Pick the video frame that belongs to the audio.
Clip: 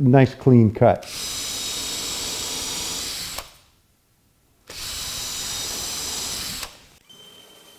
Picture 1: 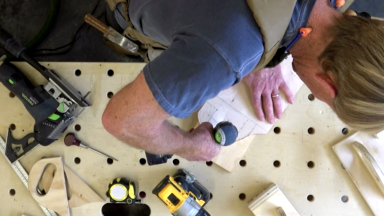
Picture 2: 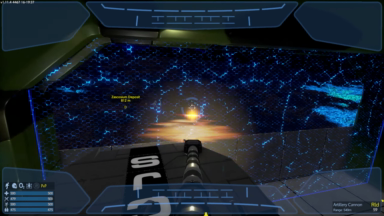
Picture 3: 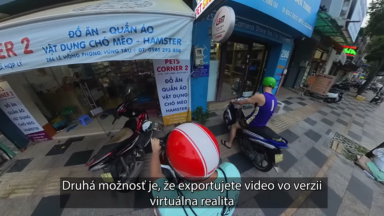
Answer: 1